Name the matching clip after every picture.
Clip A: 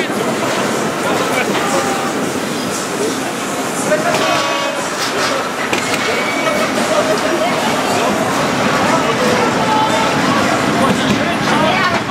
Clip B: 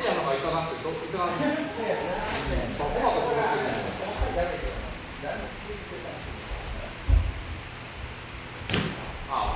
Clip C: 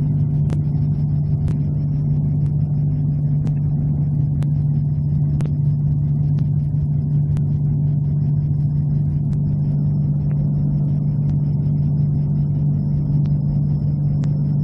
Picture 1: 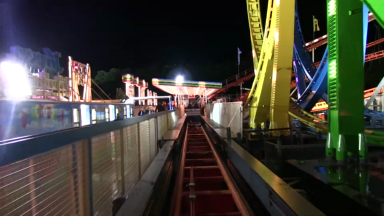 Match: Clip A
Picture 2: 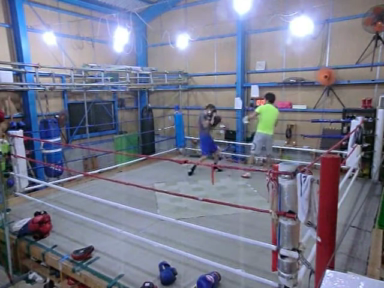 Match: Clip B